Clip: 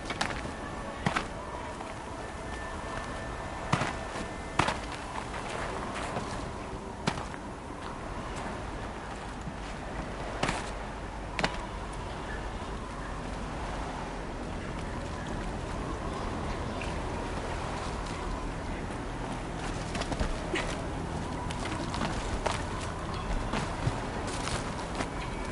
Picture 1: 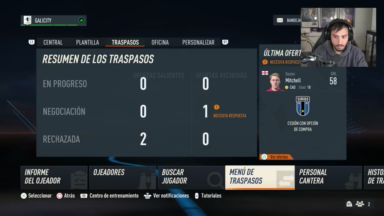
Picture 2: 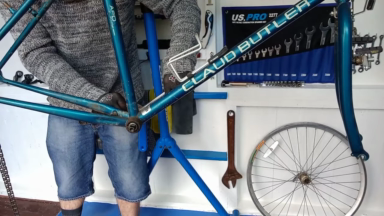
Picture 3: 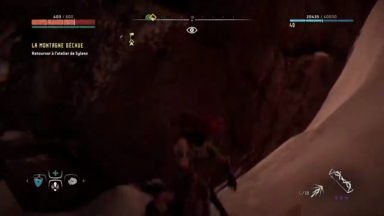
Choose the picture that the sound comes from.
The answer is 3